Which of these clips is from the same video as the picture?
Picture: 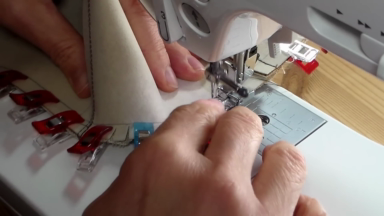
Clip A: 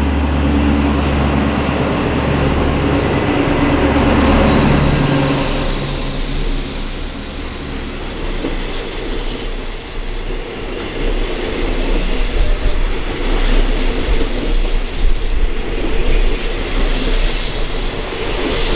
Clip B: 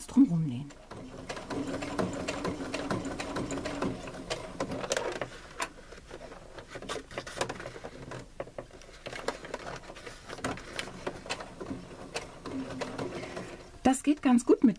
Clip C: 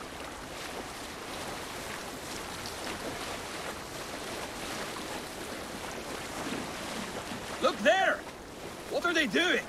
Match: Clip B